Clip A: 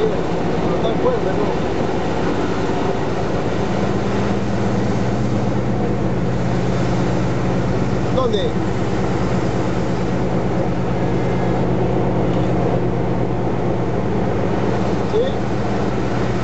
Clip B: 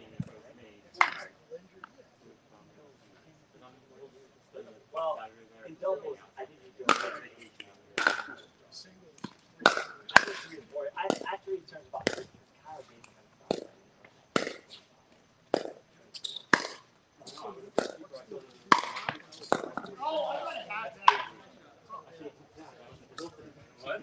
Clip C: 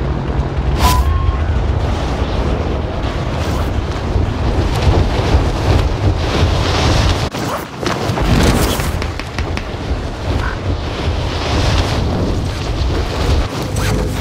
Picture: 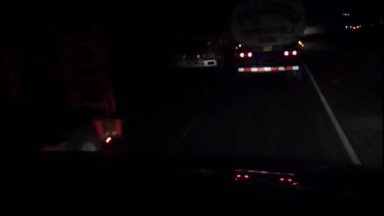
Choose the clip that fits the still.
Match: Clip A